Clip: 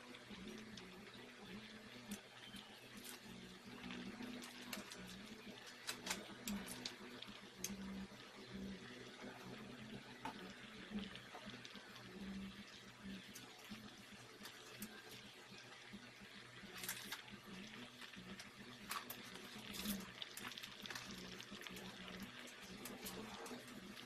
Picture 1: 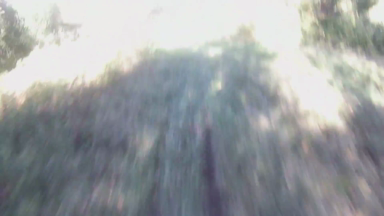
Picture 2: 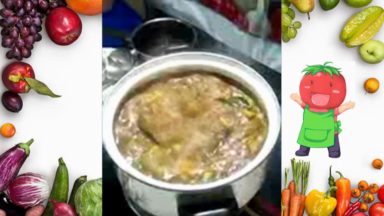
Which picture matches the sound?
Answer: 2